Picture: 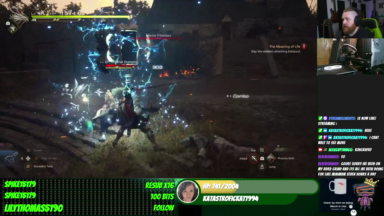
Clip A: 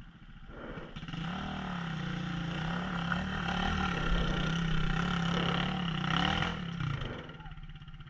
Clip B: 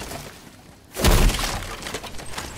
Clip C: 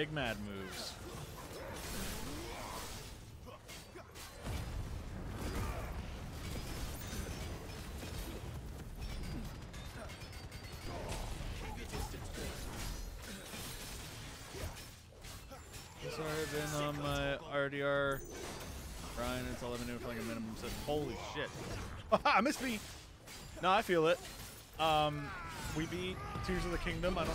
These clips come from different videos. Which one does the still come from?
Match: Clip C